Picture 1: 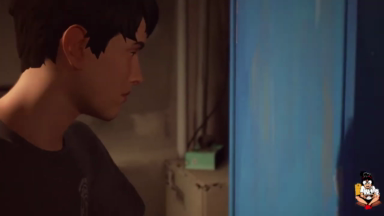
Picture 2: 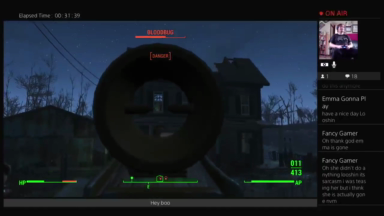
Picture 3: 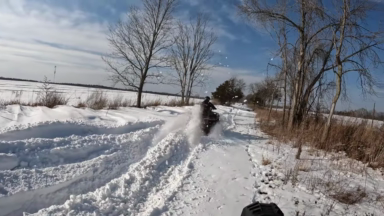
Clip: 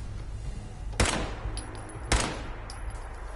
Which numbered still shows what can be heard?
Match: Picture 2